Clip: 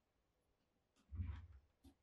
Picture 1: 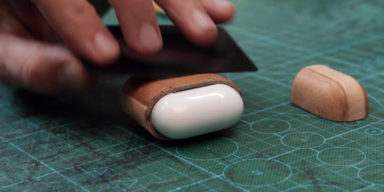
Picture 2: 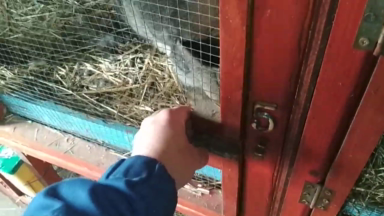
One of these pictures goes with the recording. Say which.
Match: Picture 1